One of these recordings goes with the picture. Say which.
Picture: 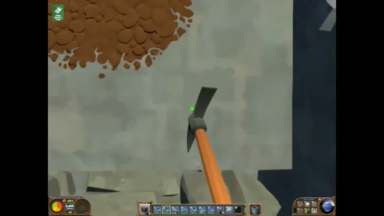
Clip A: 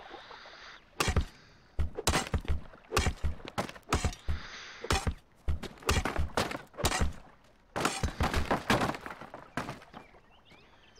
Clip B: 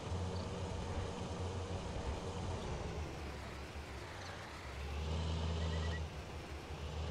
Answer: A